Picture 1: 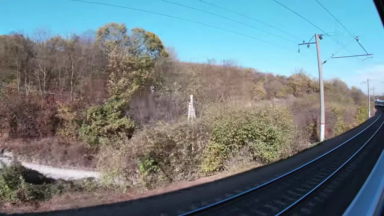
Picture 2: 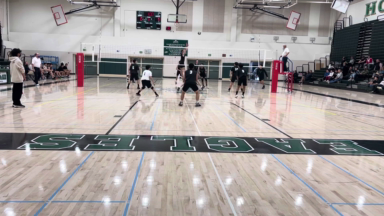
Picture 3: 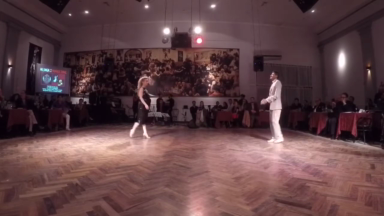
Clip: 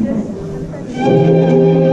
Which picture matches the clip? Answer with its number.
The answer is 3